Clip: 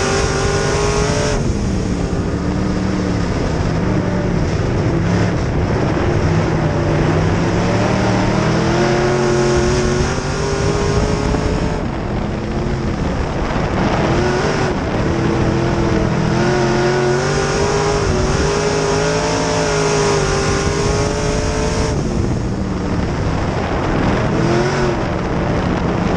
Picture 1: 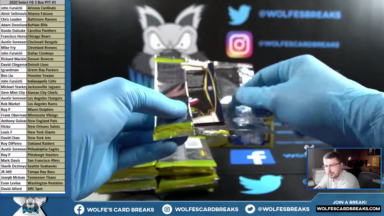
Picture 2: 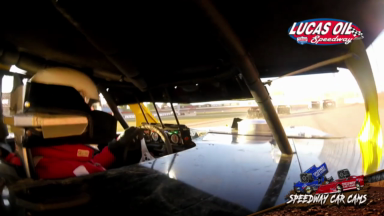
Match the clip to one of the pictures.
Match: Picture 2